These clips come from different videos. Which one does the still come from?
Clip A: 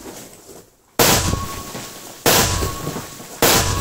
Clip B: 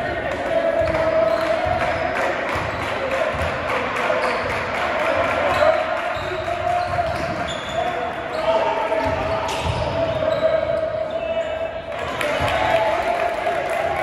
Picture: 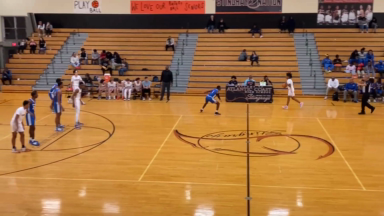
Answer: B